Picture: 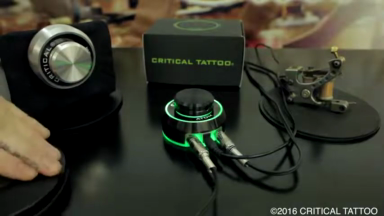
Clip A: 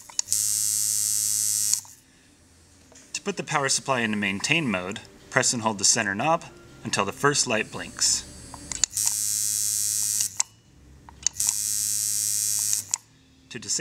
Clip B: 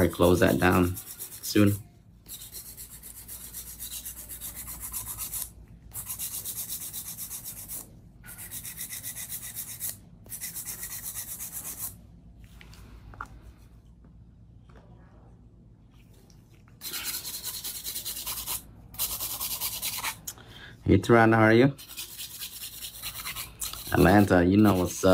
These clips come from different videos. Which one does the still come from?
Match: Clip A